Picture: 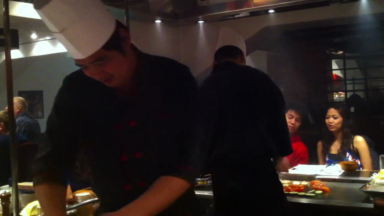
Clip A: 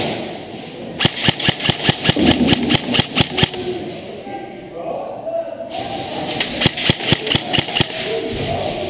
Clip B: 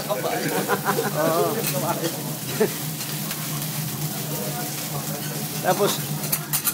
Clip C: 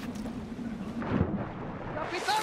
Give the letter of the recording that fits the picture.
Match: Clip B